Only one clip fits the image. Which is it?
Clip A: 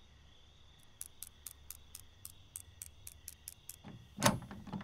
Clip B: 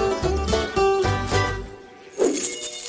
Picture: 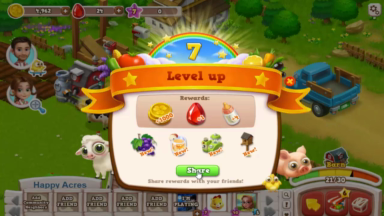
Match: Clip B